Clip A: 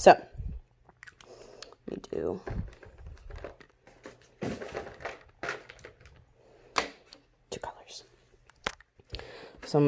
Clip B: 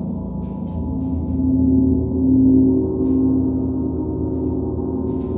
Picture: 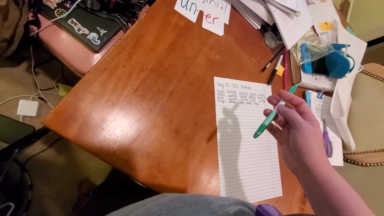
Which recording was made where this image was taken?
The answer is A